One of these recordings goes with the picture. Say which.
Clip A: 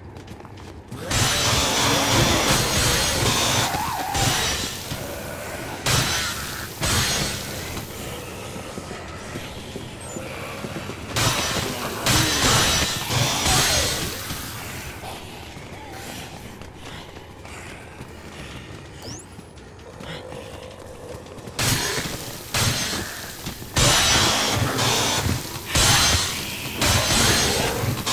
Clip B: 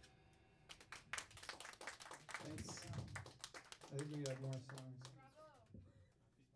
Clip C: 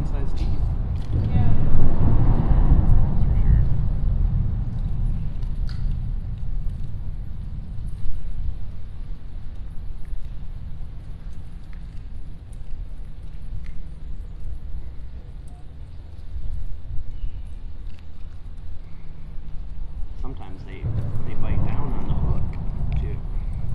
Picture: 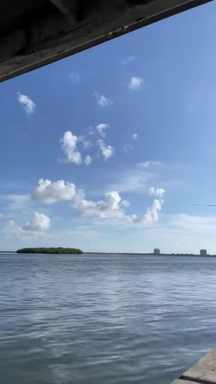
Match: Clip C